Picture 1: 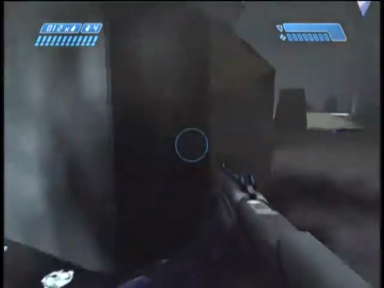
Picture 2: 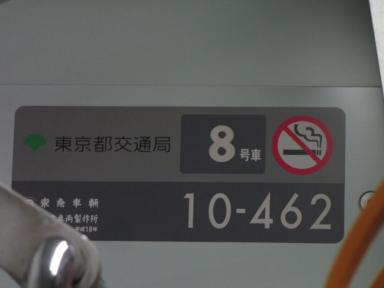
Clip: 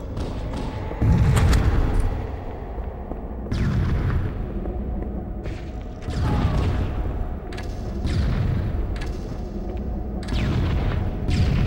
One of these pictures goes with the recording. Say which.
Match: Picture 1